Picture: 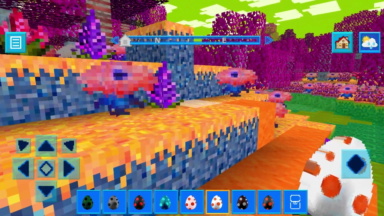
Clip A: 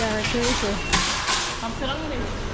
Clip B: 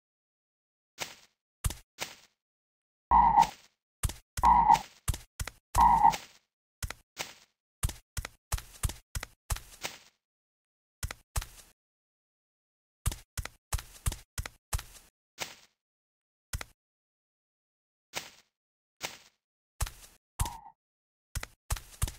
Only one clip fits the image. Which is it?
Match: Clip B